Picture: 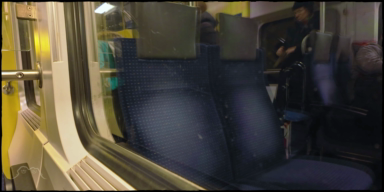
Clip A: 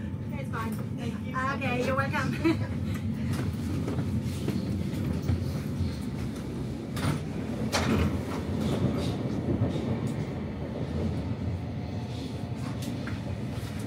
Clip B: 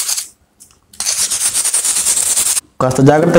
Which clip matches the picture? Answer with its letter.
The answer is A